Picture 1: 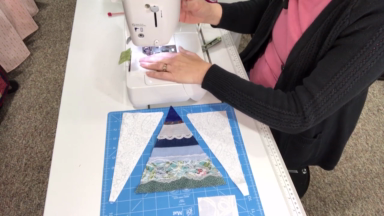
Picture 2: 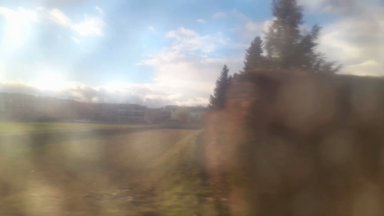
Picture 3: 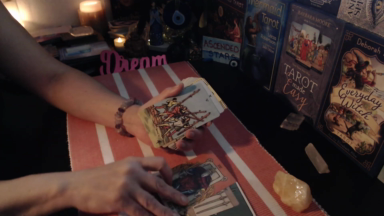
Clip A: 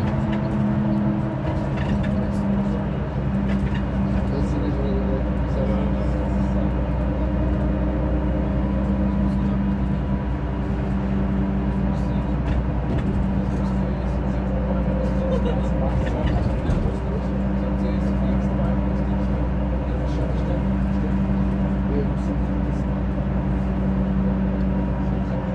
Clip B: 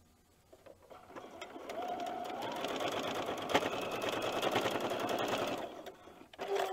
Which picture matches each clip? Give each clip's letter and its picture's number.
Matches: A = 2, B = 1